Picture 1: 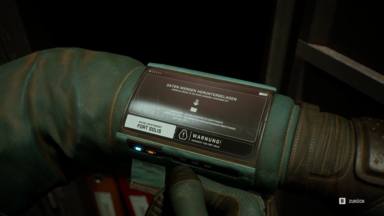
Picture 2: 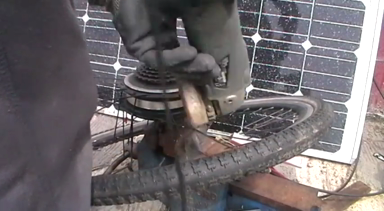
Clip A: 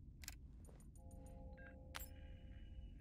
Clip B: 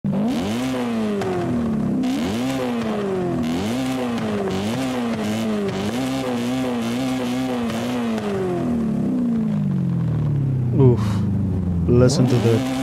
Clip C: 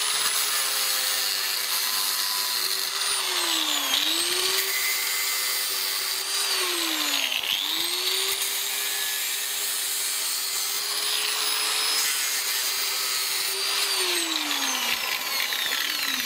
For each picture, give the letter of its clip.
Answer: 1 A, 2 C